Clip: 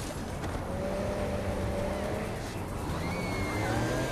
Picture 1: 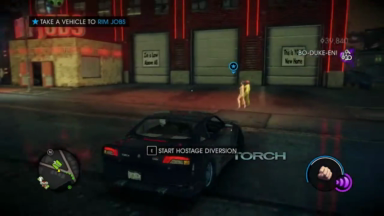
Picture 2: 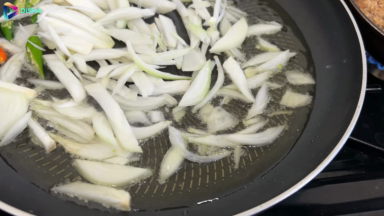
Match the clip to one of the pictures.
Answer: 1